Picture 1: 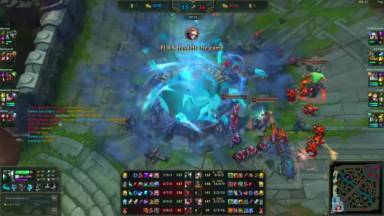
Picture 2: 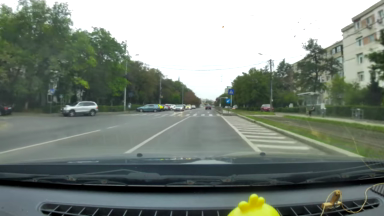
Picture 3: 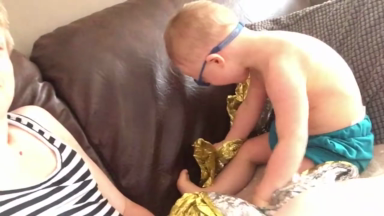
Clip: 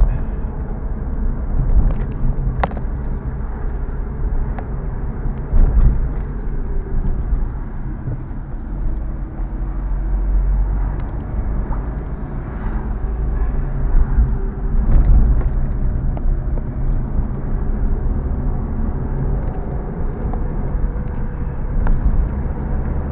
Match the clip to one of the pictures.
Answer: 2